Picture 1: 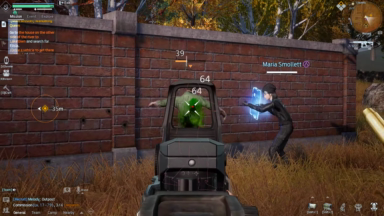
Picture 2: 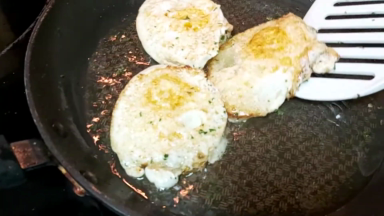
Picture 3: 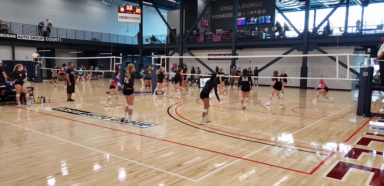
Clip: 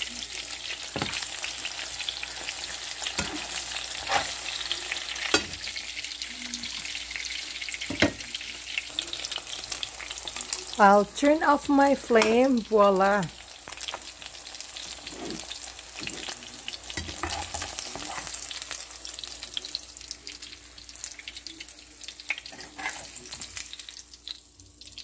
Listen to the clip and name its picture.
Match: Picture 2